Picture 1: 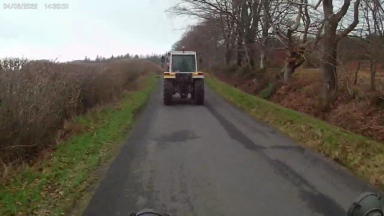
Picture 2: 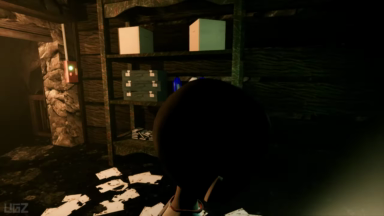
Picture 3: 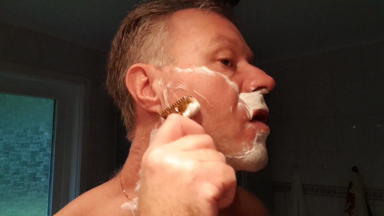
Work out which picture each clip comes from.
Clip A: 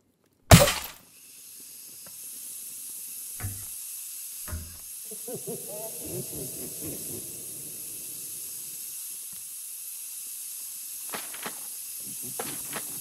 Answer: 2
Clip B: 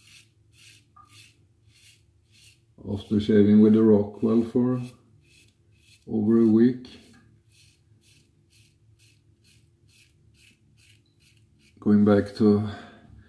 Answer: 3